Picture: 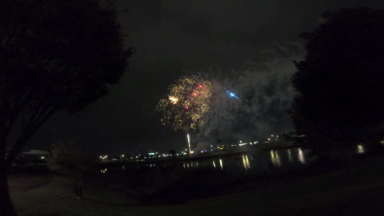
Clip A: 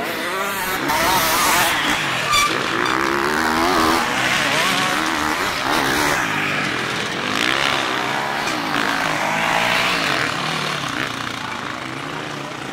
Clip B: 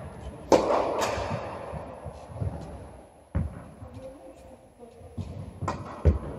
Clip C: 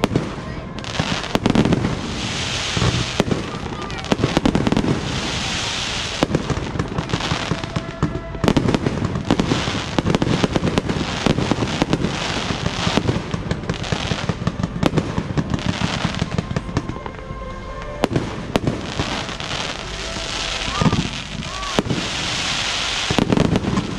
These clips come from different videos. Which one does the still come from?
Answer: C